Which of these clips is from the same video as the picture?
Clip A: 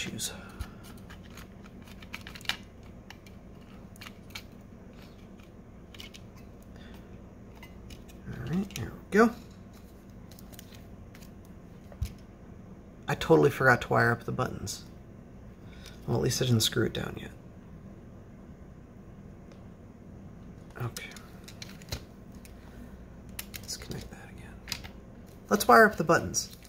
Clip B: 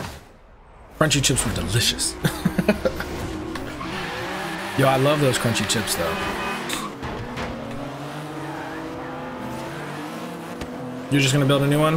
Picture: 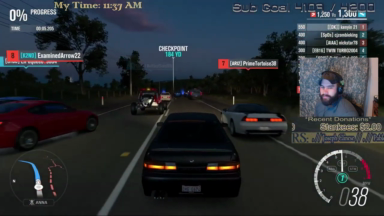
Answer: B